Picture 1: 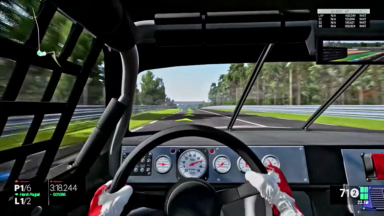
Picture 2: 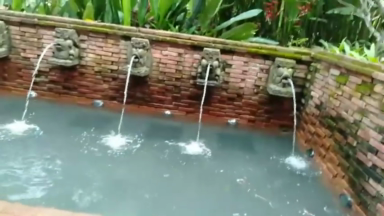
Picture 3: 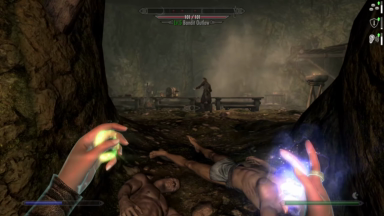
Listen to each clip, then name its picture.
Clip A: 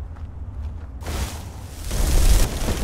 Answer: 3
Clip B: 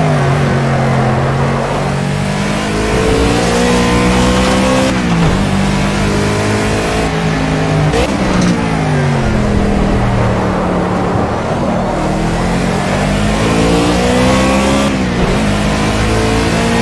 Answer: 1